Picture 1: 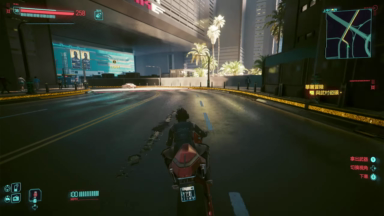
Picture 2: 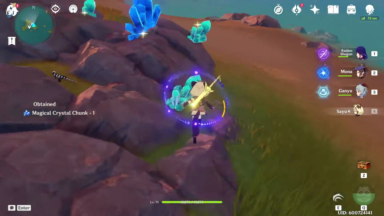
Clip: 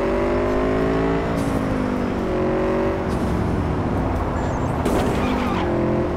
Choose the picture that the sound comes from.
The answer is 1